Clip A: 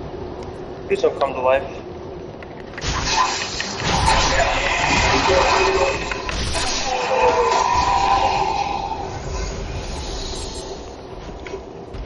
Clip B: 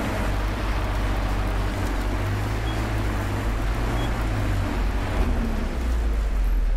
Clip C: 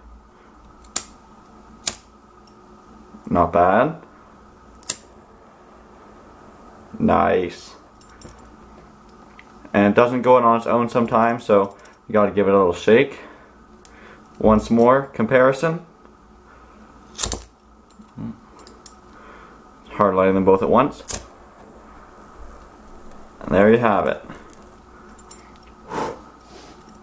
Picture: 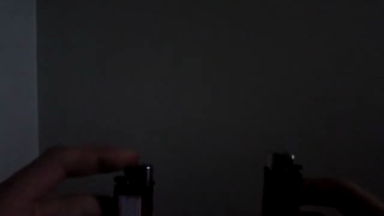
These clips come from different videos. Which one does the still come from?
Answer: C